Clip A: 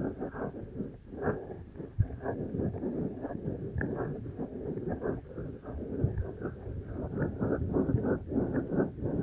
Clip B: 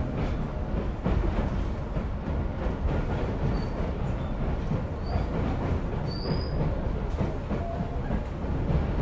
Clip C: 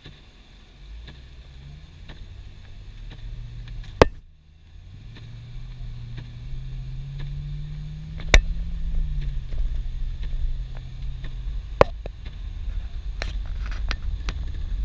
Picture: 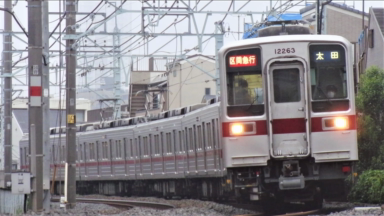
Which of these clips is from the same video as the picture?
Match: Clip B